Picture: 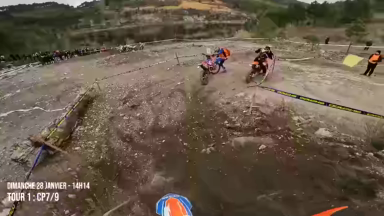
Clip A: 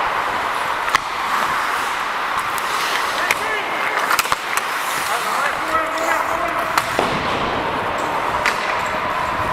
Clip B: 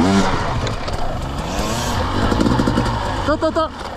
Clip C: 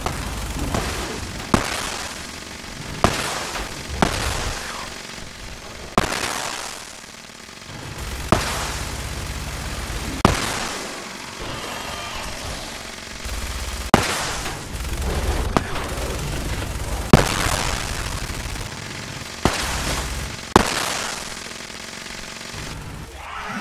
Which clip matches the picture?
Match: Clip B